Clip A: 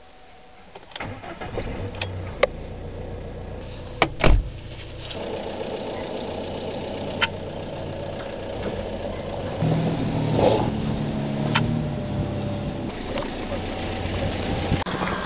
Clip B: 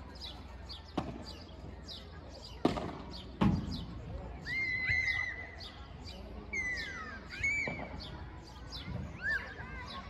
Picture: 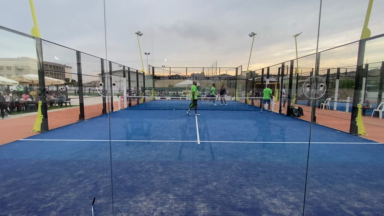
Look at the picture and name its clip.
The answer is B